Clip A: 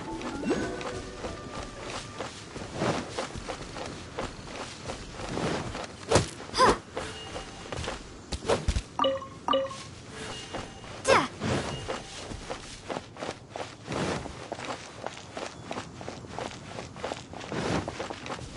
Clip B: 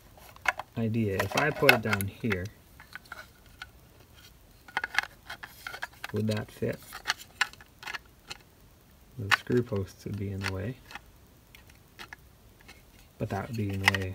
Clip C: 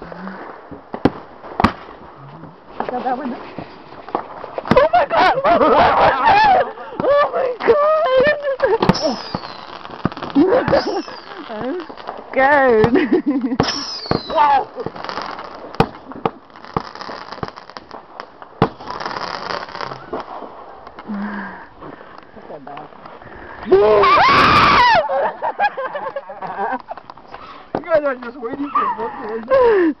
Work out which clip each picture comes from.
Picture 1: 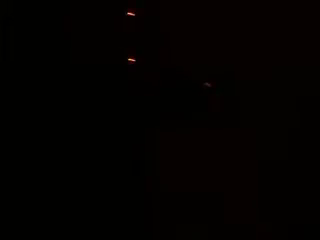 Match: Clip C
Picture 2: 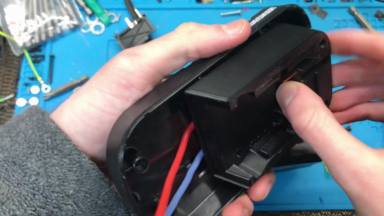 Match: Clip B